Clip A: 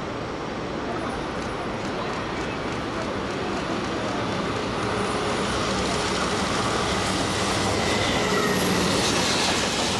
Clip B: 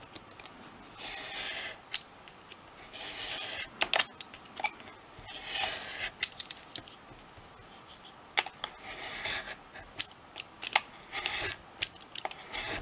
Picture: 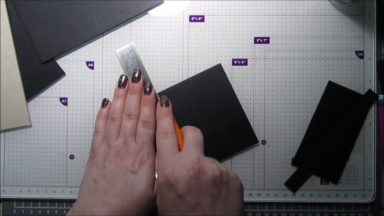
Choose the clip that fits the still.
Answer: B